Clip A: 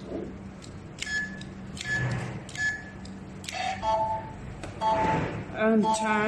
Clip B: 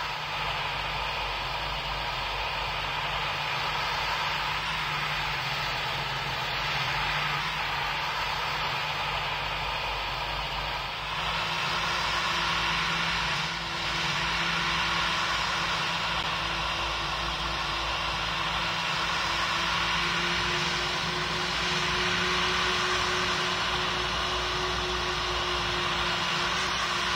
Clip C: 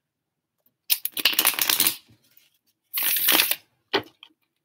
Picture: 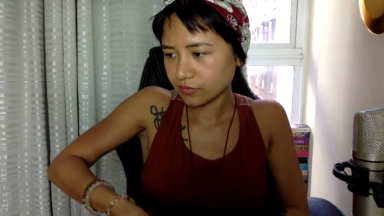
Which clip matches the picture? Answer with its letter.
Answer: C